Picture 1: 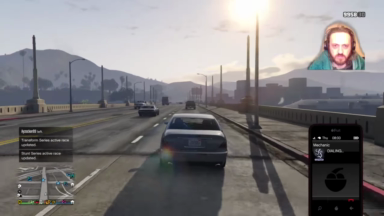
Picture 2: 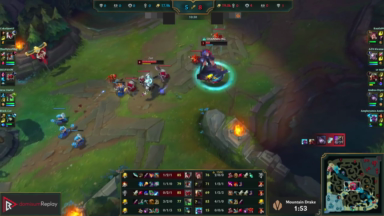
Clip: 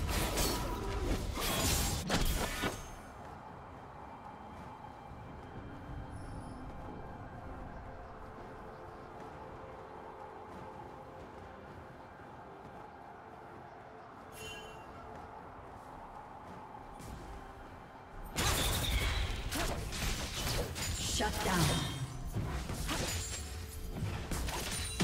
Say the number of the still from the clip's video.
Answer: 2